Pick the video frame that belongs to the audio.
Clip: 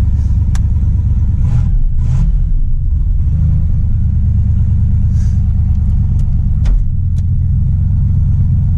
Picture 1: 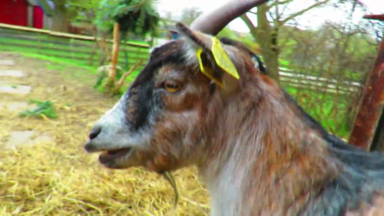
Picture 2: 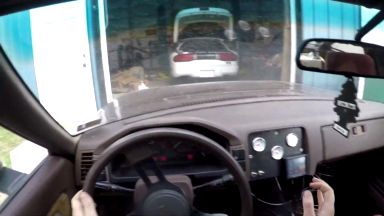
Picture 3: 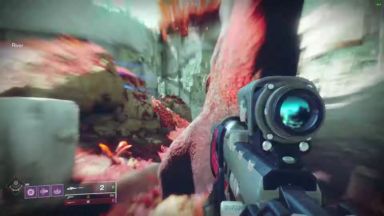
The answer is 2